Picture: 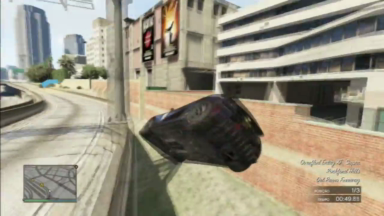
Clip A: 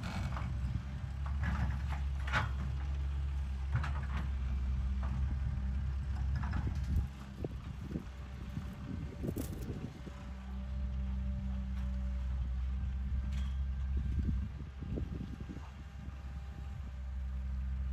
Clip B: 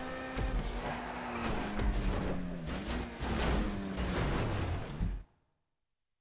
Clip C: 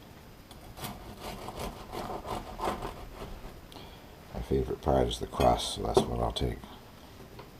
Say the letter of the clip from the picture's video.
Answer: B